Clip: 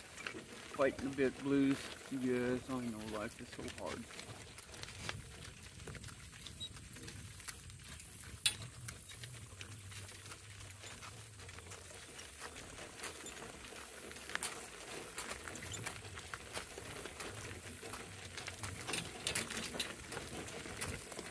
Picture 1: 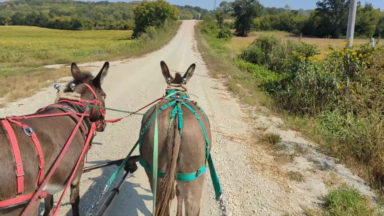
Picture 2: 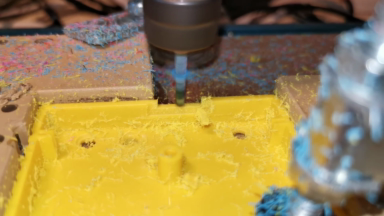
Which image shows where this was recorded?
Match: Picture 1